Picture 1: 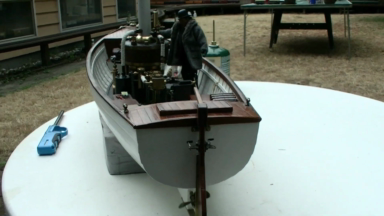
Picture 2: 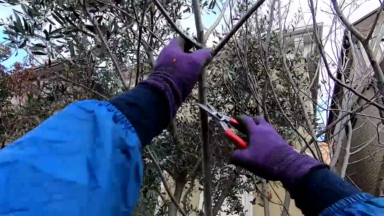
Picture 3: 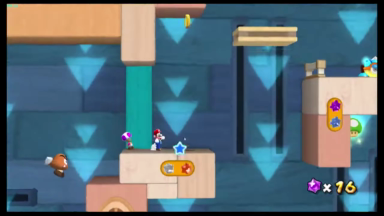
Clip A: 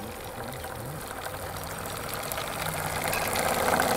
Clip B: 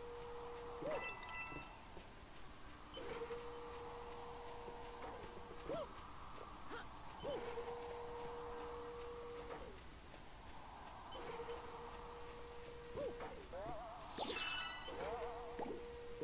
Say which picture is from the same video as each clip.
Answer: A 1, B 3